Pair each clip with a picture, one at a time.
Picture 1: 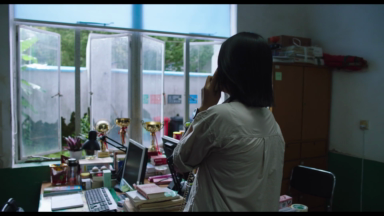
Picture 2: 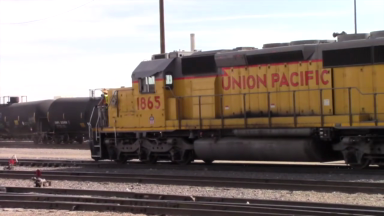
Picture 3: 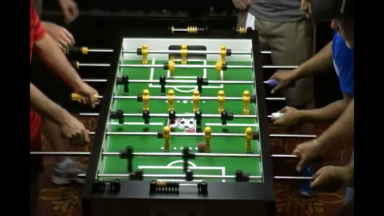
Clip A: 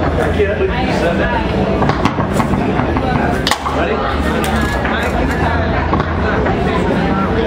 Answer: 3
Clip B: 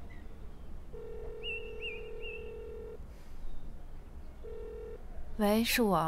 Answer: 1